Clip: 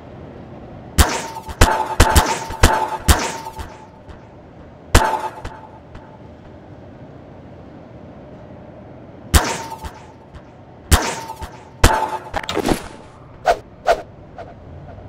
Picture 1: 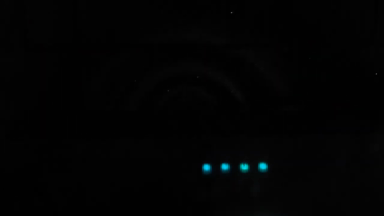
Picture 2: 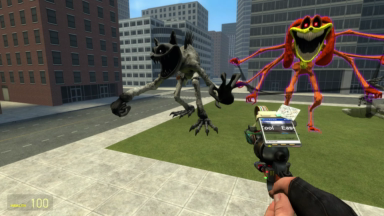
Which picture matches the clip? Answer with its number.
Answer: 2